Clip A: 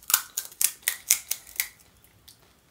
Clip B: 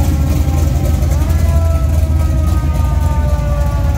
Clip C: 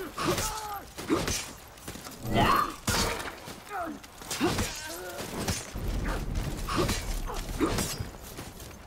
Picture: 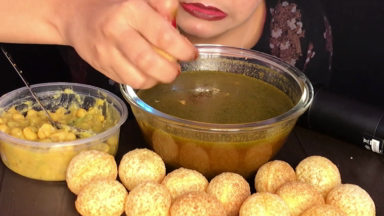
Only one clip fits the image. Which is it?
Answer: A